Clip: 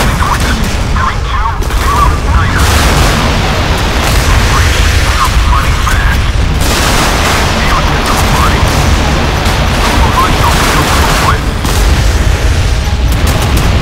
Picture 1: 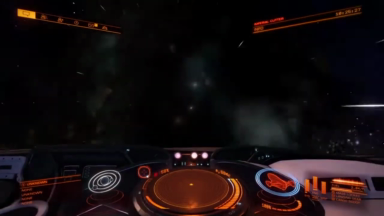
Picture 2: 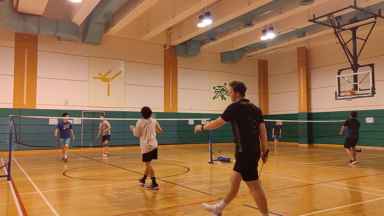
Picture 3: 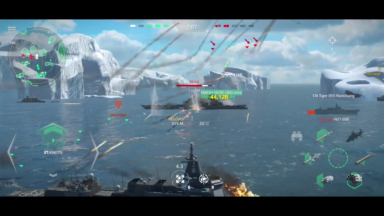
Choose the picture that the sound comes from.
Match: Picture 3